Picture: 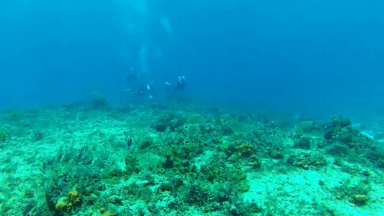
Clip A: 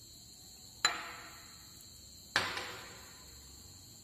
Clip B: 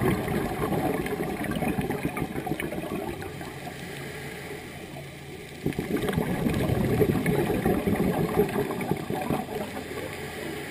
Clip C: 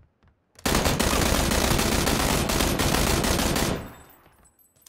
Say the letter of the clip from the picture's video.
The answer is B